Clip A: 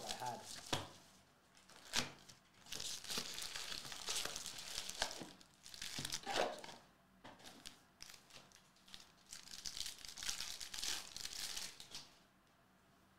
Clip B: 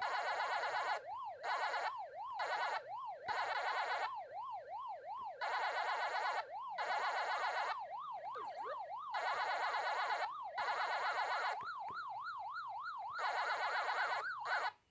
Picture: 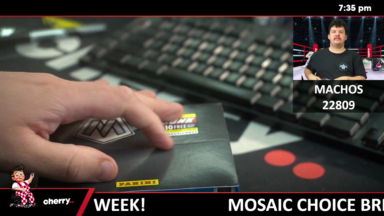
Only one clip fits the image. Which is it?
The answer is A